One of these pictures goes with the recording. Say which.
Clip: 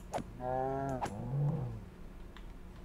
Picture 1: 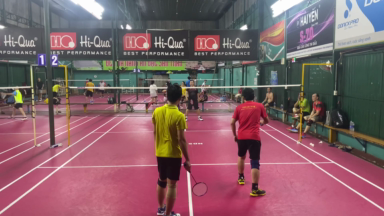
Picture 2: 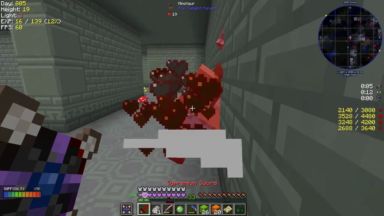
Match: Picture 2